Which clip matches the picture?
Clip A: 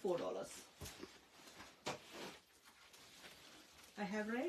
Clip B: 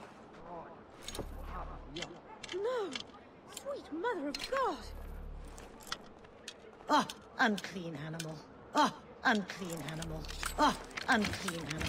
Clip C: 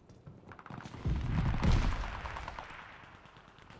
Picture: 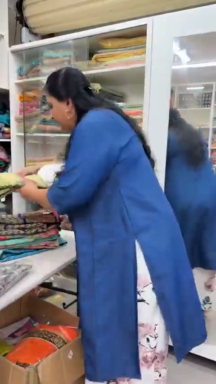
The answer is A